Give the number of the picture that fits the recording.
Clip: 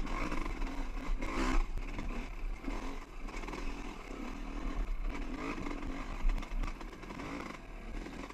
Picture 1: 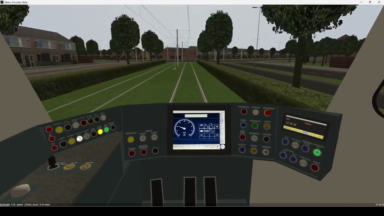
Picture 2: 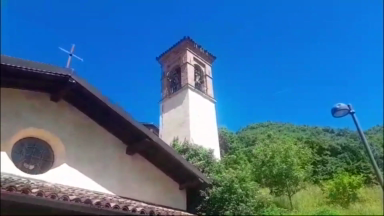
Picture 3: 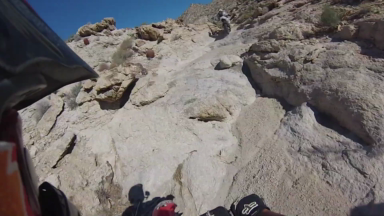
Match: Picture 3